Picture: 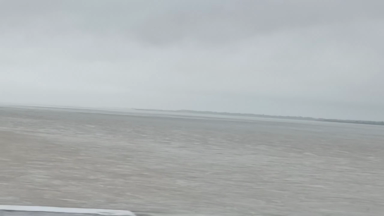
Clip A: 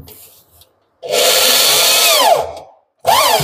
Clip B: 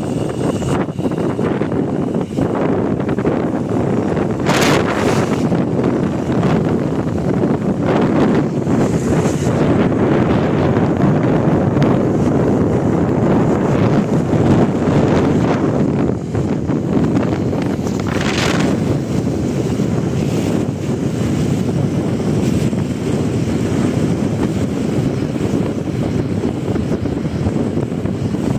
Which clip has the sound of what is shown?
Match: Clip B